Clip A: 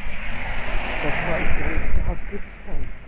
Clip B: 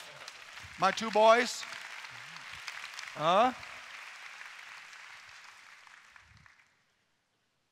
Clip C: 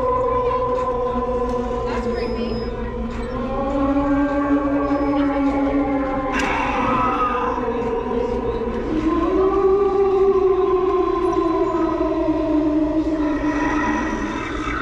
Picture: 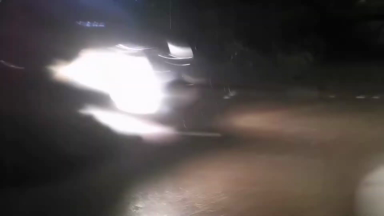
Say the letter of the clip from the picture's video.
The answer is A